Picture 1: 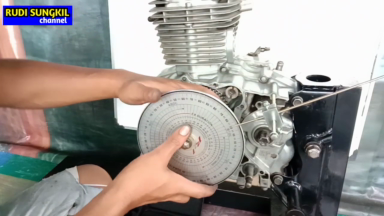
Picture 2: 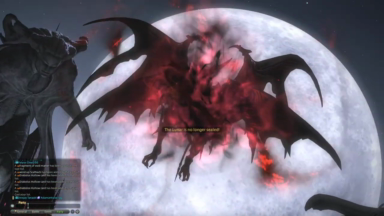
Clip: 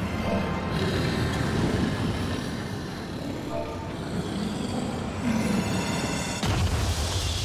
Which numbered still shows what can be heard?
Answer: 2